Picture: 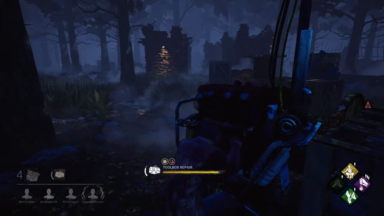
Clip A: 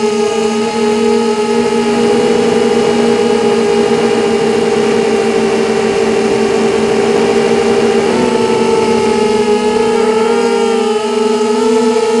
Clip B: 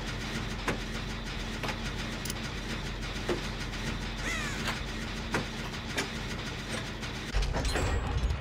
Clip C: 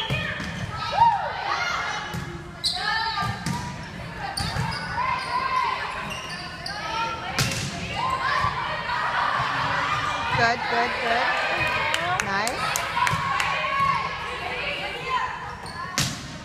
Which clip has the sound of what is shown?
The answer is B